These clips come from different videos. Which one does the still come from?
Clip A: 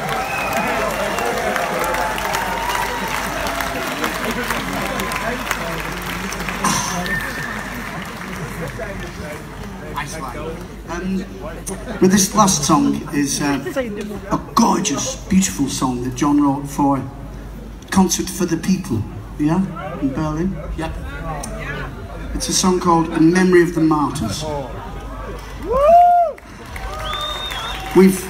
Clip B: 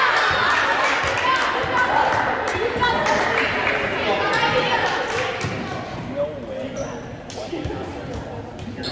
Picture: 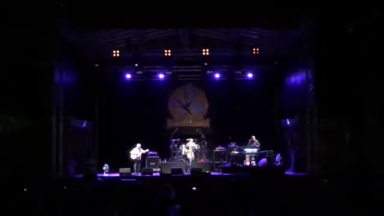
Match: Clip A